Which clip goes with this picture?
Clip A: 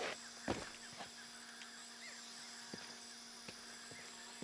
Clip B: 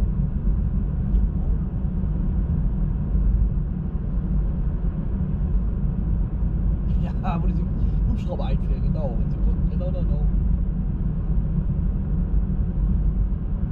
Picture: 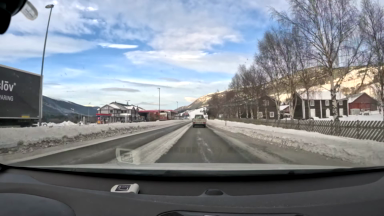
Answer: B